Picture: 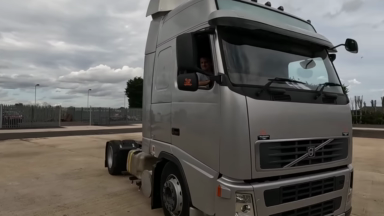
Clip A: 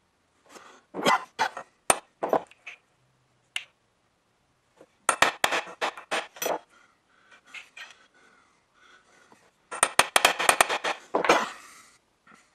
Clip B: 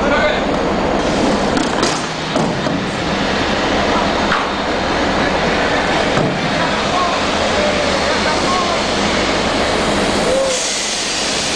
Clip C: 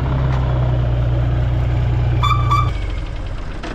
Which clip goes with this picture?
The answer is C